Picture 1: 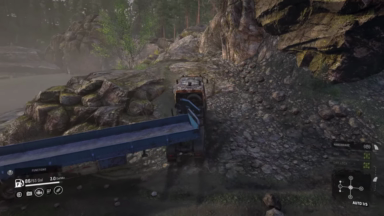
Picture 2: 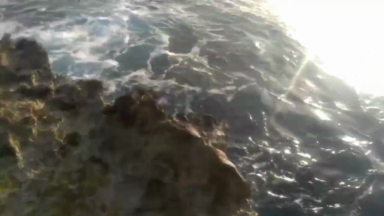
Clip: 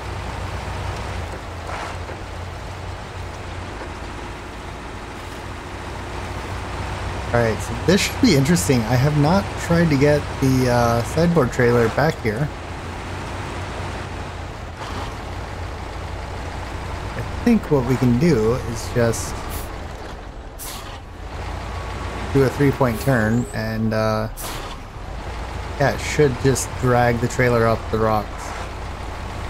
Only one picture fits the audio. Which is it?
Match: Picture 1